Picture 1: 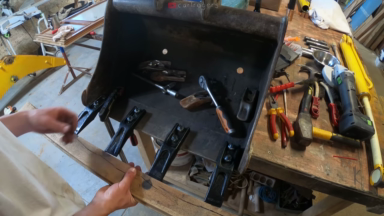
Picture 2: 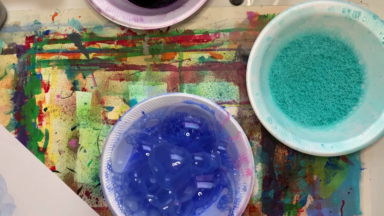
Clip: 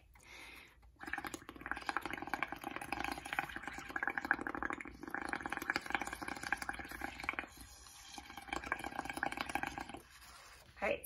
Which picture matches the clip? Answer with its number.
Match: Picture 2